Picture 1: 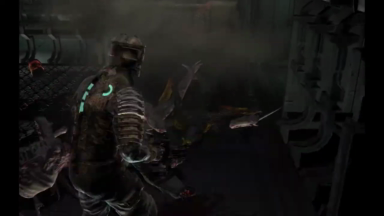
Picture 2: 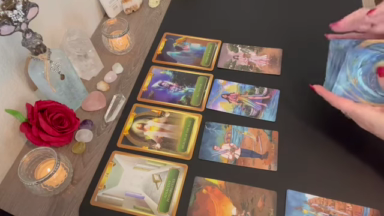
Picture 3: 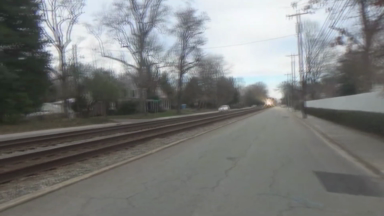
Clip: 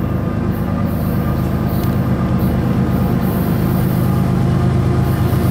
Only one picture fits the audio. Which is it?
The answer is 3